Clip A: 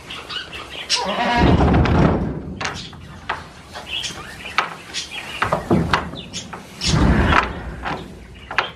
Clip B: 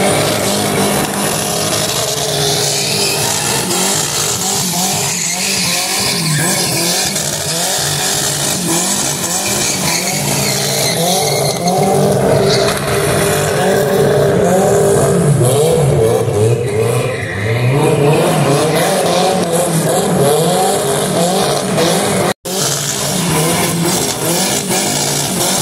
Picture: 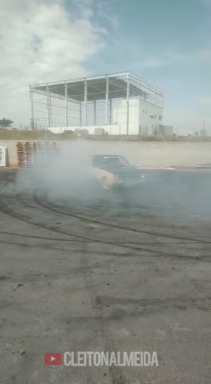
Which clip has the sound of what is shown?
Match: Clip B